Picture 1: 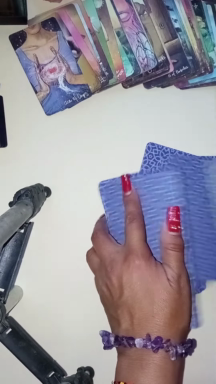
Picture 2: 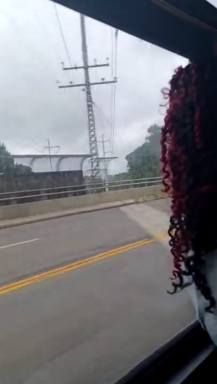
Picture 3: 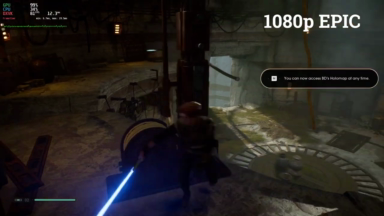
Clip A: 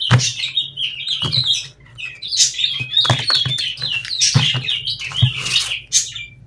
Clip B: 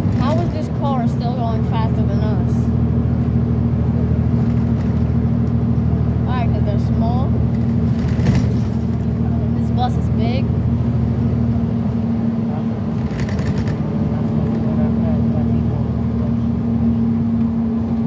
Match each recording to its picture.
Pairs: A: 1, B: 2